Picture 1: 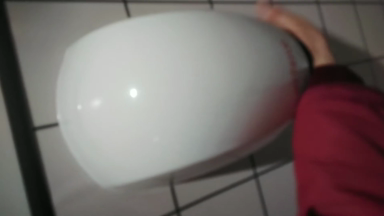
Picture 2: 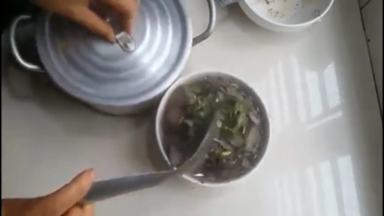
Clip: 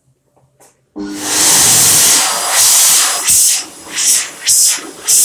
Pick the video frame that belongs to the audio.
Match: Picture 1